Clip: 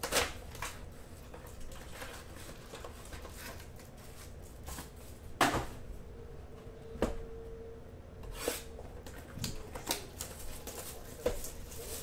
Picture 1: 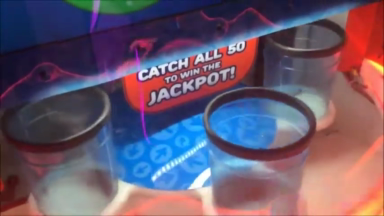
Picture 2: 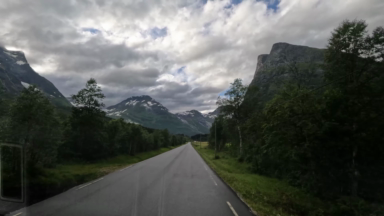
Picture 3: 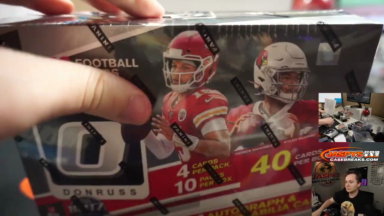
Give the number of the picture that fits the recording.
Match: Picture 3